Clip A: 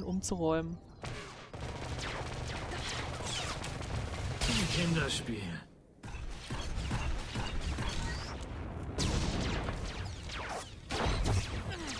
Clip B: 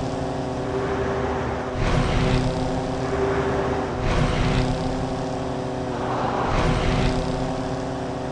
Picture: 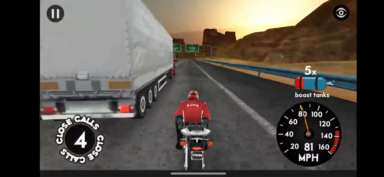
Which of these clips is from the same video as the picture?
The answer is B